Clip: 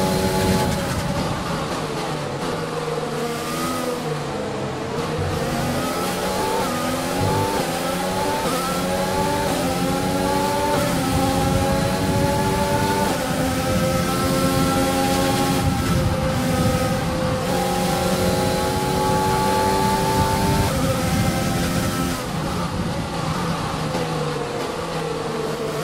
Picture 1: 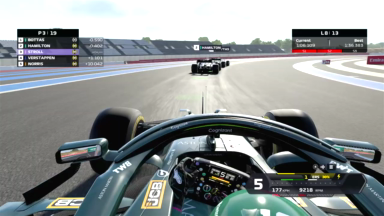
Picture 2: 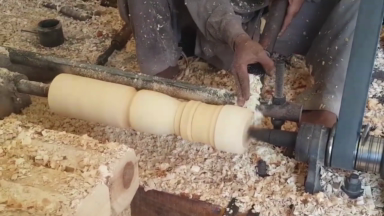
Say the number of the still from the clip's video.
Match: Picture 1